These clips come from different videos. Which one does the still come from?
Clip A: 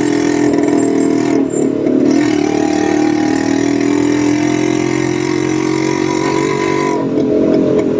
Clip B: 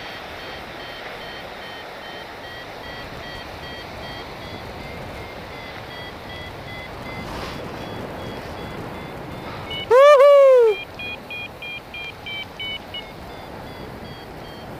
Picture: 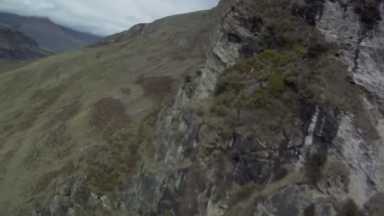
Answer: B